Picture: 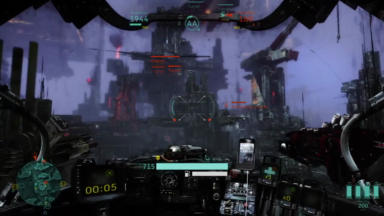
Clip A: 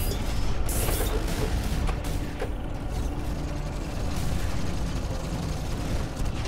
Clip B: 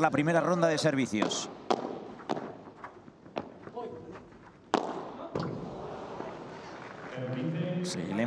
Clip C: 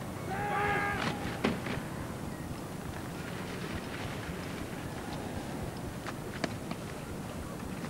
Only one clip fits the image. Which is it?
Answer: A